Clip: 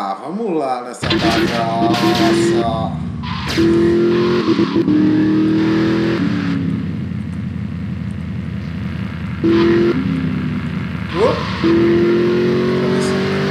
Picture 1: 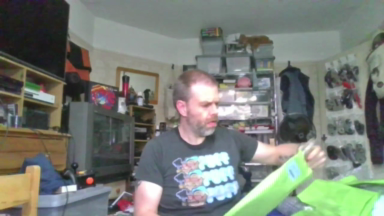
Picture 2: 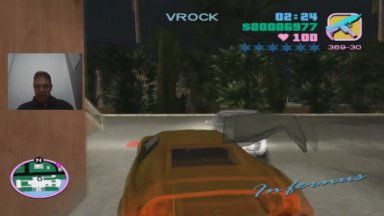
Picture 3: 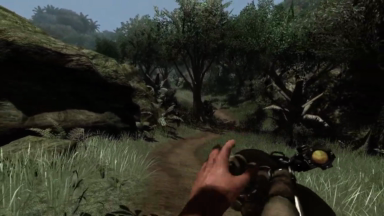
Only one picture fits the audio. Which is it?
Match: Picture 2